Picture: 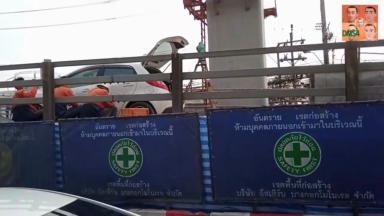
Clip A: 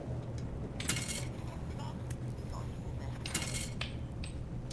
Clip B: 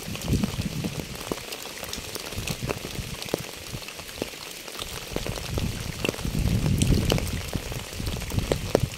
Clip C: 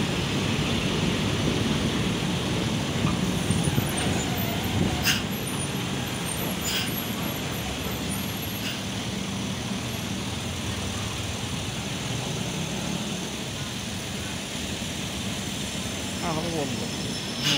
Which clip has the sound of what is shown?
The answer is C